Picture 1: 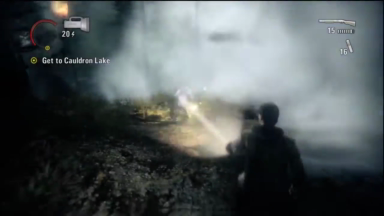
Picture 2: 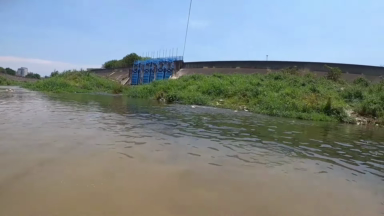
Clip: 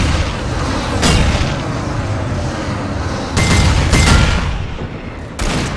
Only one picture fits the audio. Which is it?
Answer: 1